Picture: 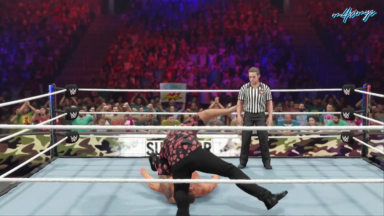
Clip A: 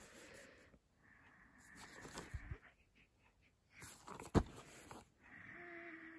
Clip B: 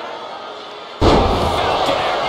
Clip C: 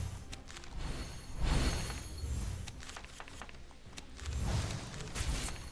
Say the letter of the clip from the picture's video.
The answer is B